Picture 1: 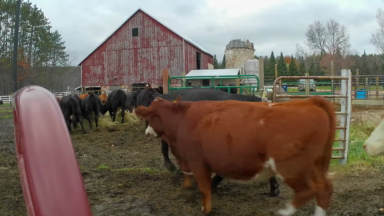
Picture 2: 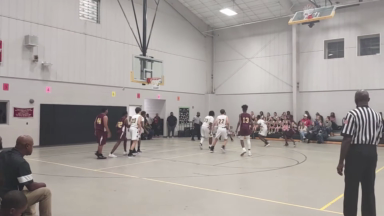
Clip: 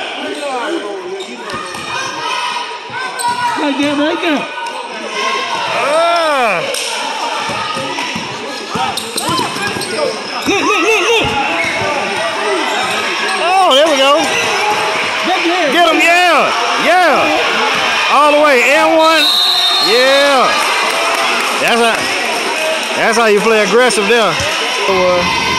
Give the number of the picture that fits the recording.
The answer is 2